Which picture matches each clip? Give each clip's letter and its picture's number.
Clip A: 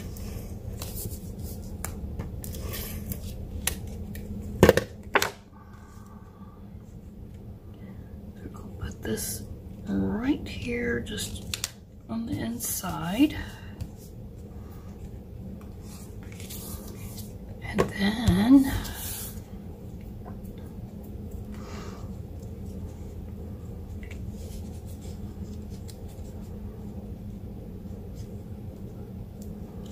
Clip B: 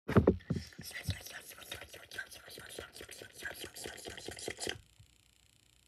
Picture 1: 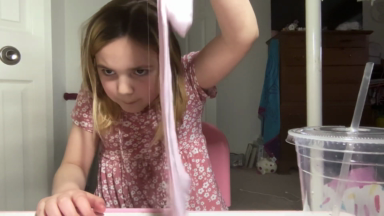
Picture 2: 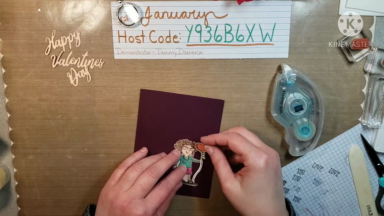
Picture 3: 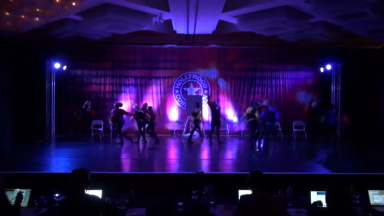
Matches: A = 2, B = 1